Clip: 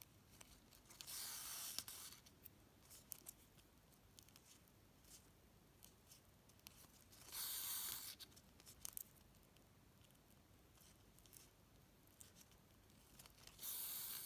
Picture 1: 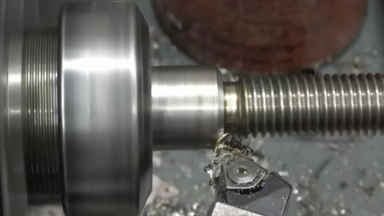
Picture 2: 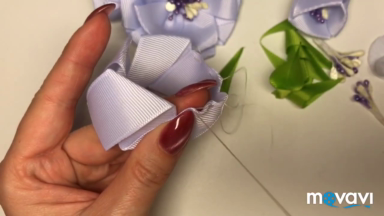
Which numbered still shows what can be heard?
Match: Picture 2